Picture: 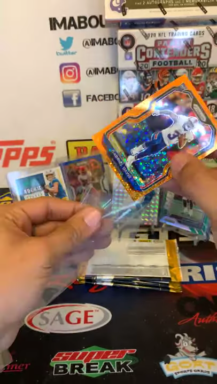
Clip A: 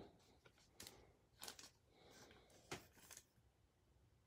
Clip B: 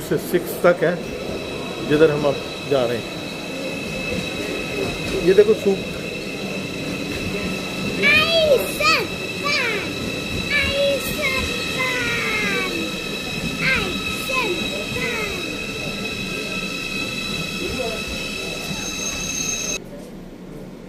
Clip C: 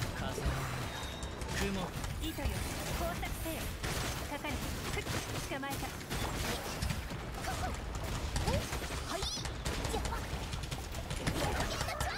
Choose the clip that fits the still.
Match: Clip A